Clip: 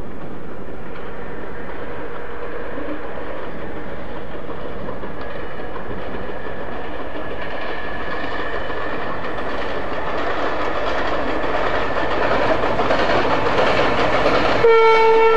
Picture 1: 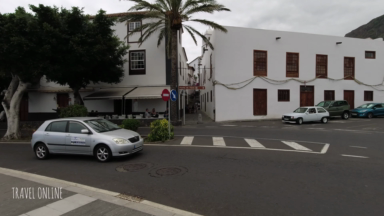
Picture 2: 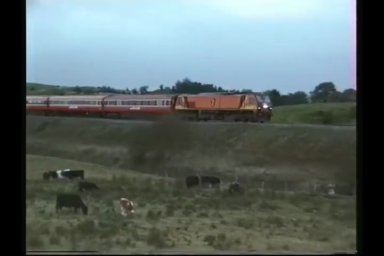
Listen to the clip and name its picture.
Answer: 2